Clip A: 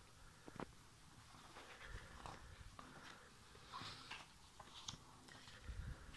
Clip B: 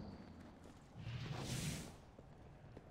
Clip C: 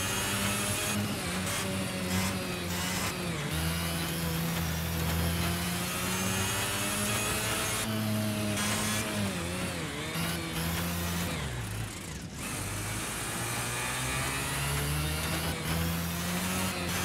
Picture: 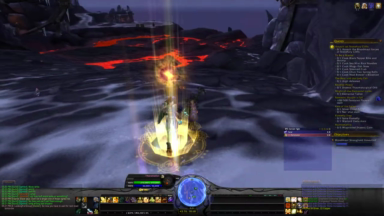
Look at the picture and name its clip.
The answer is B